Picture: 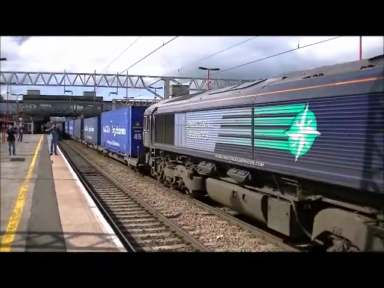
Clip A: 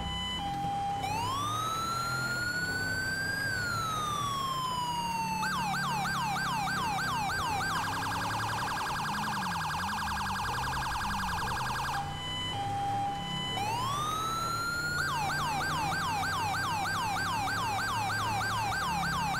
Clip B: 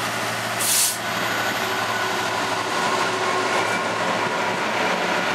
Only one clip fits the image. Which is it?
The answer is B